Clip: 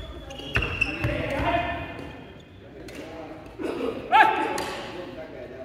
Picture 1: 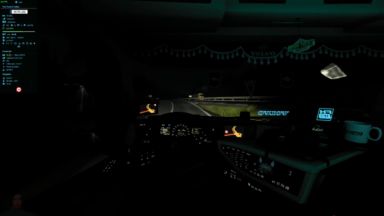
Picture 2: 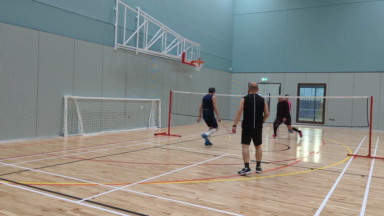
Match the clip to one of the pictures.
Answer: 2